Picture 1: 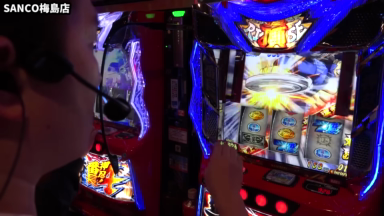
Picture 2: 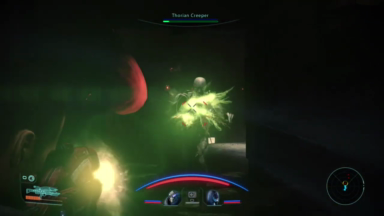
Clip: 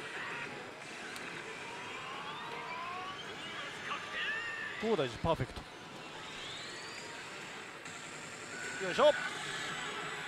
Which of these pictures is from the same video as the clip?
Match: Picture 1